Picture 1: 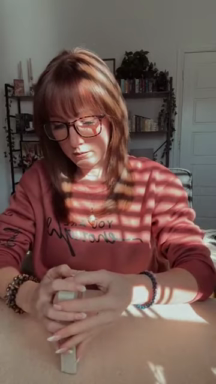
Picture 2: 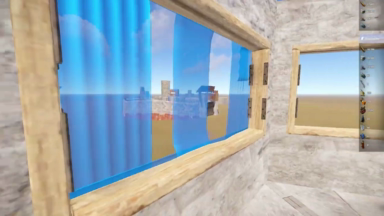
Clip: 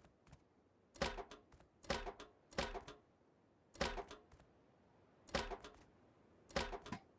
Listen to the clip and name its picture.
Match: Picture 2